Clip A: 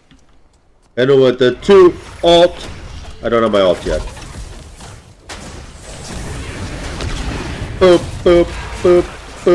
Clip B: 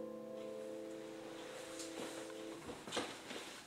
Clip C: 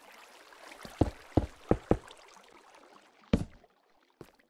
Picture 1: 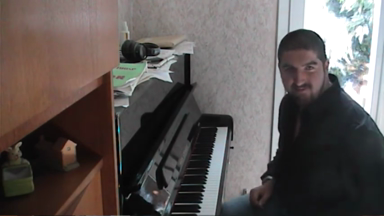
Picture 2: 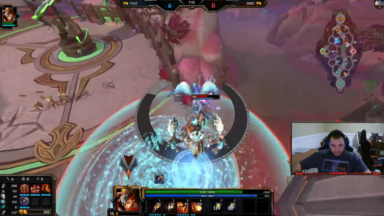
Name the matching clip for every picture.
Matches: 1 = B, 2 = A